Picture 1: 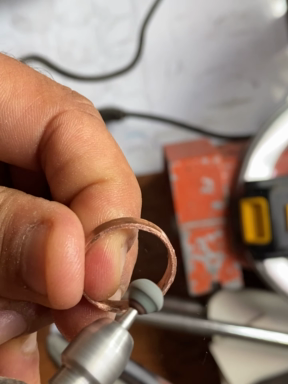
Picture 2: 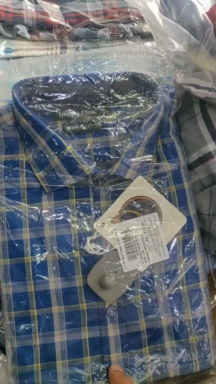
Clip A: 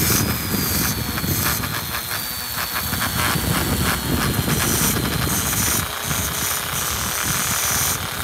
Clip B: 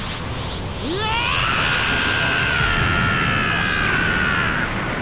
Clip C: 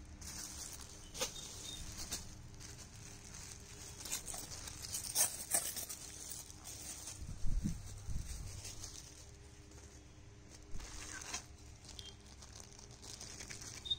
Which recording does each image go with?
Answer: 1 A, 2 C